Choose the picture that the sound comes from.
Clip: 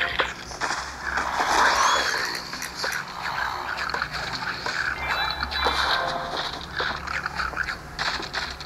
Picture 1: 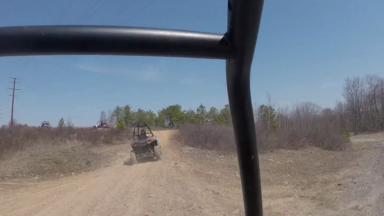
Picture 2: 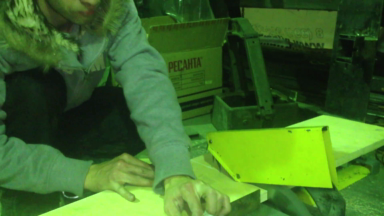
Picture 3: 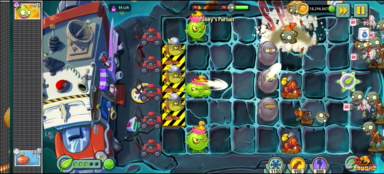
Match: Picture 3